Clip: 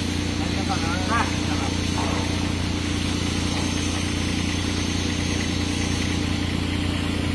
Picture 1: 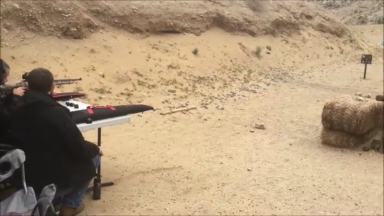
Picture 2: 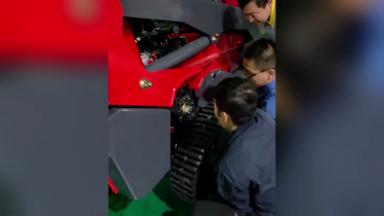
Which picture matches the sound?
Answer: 2